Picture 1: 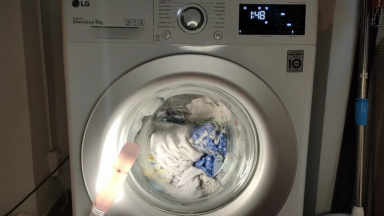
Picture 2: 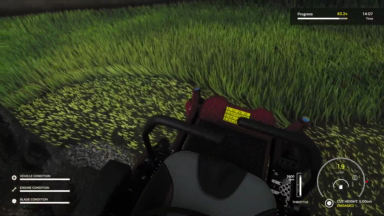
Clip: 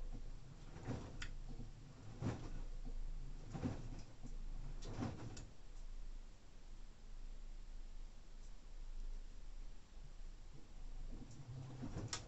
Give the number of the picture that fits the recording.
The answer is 1